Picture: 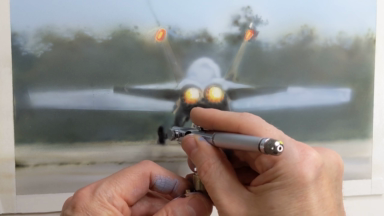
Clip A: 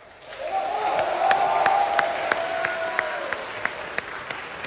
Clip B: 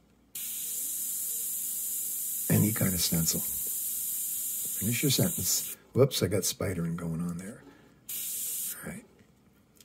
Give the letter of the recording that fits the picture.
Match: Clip B